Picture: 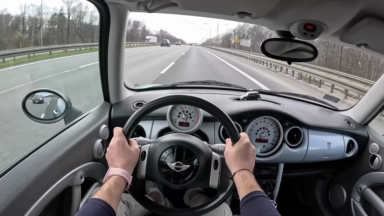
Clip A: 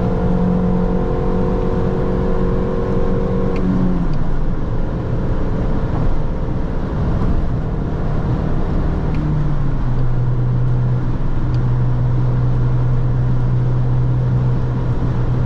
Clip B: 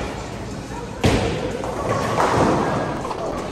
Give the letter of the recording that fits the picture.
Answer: A